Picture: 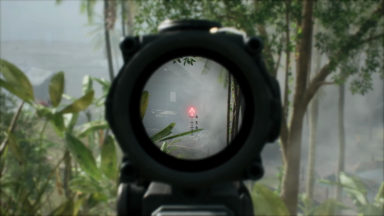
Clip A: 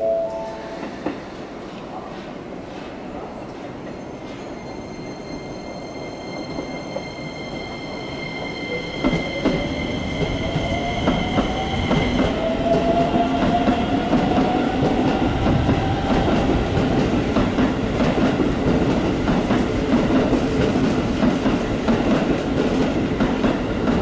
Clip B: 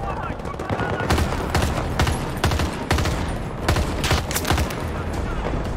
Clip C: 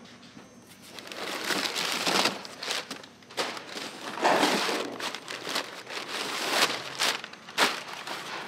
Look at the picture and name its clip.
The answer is B